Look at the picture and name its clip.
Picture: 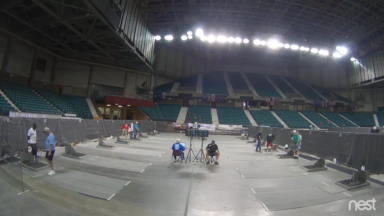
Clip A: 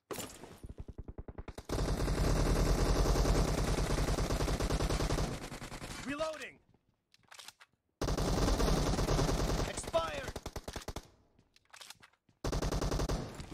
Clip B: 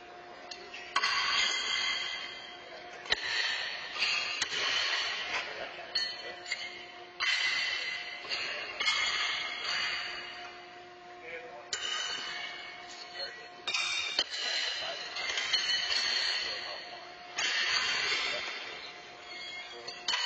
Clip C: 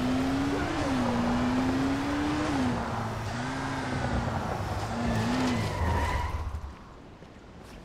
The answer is B